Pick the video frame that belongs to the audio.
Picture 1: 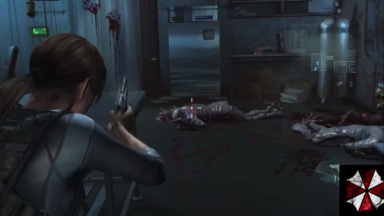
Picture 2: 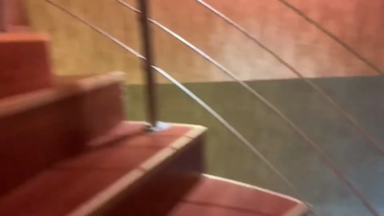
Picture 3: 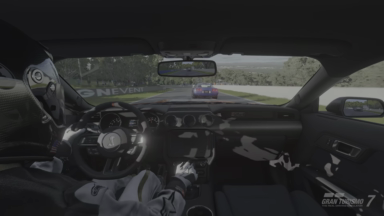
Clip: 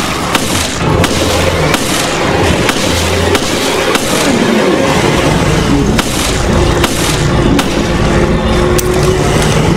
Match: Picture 1